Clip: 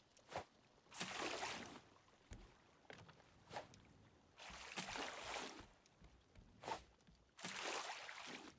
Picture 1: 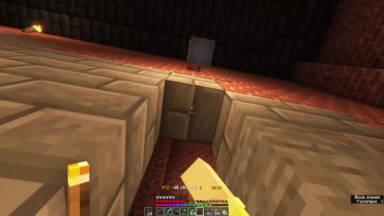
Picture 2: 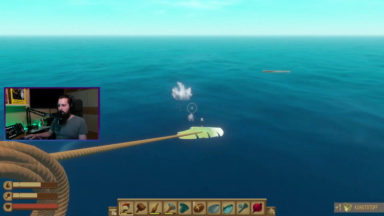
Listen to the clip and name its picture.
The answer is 2